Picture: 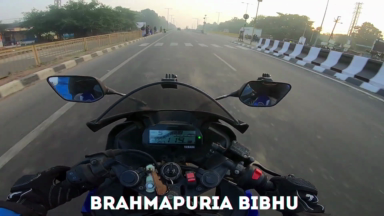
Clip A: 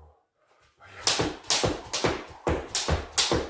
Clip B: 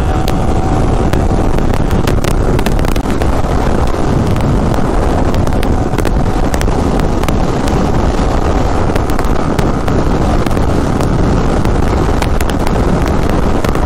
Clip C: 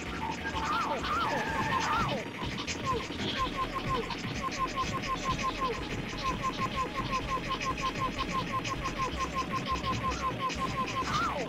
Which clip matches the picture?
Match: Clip B